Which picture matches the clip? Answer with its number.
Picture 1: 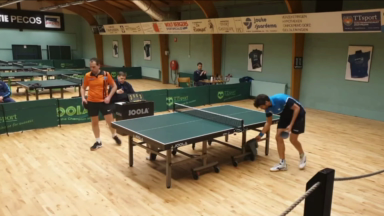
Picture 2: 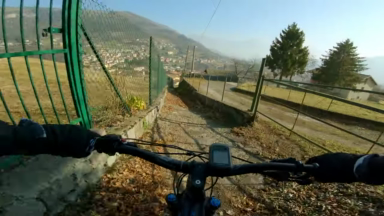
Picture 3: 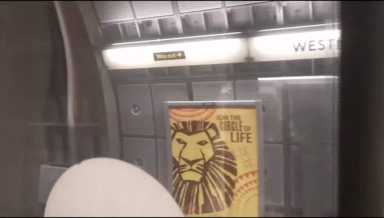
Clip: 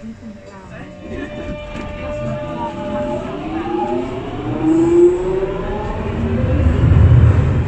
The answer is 3